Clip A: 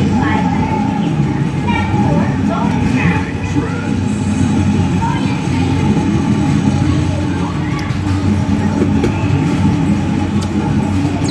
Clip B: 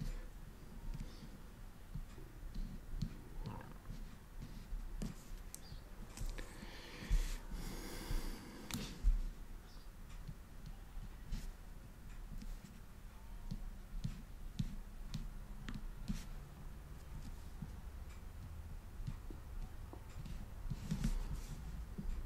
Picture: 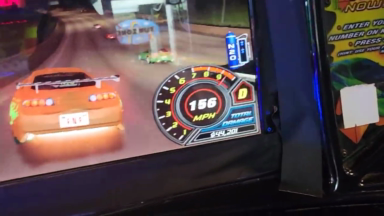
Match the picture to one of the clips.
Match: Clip A